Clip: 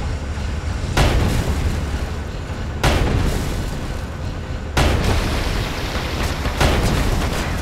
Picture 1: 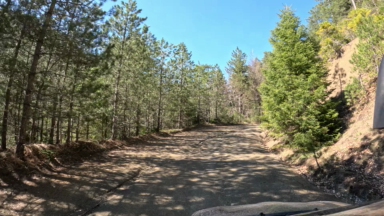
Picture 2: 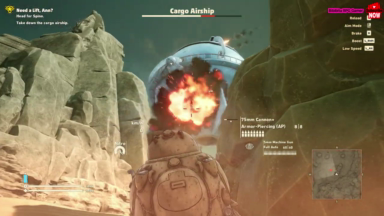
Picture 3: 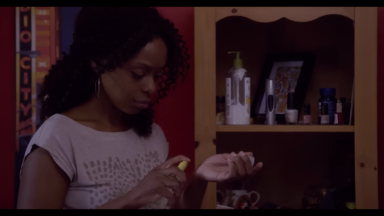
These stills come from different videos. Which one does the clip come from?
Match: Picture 2